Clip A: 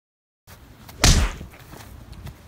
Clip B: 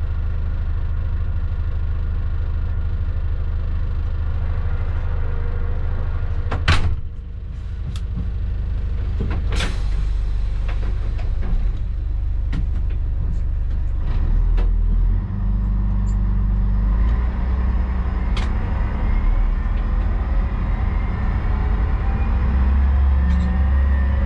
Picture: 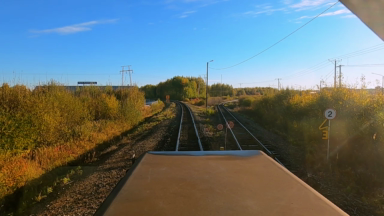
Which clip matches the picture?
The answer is B